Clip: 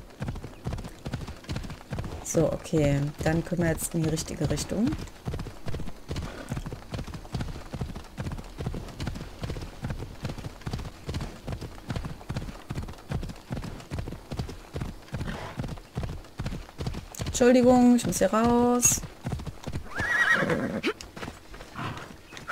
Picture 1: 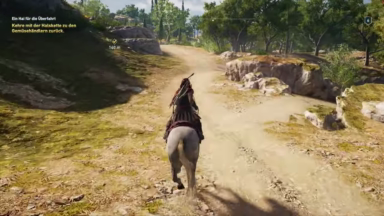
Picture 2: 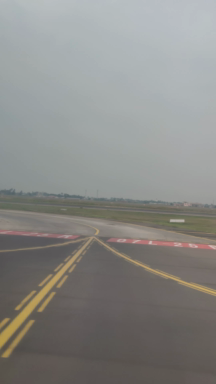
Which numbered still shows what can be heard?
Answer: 1